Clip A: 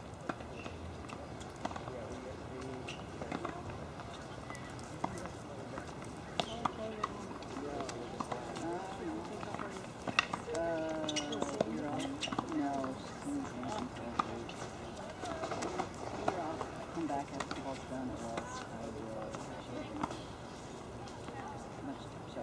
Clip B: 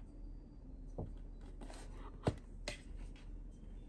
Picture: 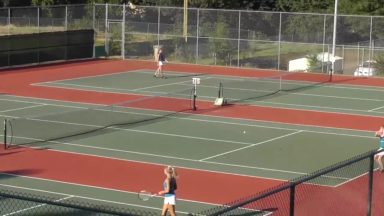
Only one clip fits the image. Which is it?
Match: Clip A